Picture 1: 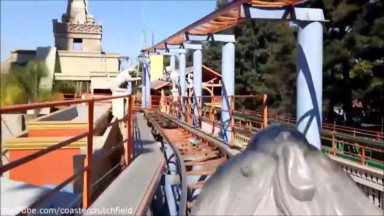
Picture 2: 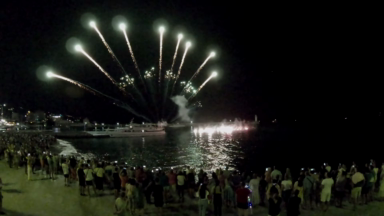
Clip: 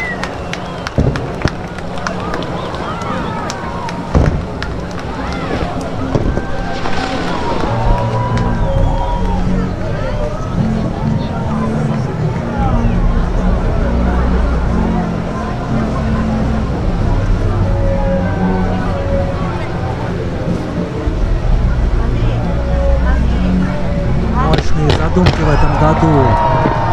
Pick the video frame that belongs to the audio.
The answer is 2